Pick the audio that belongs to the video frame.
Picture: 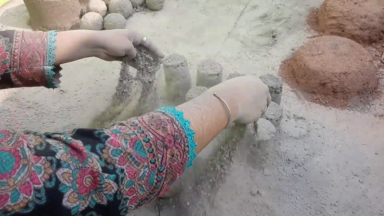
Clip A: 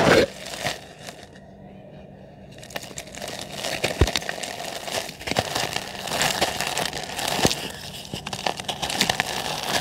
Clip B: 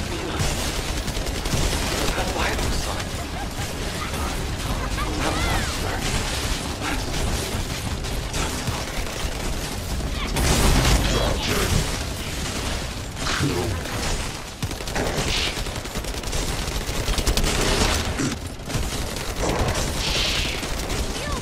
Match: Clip A